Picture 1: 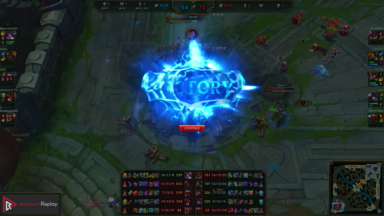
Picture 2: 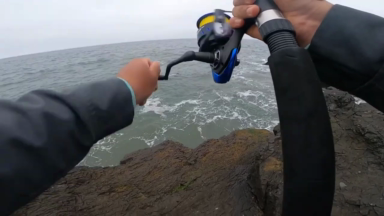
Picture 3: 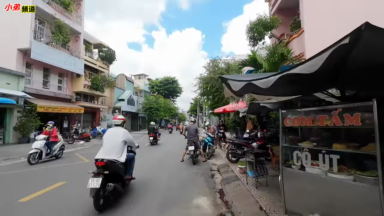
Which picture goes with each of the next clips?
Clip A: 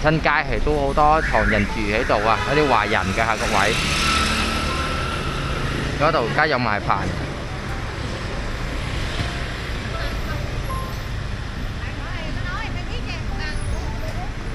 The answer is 3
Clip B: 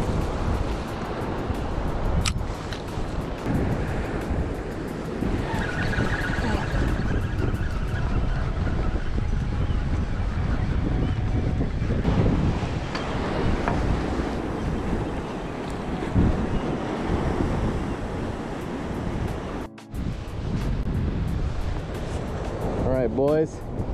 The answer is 2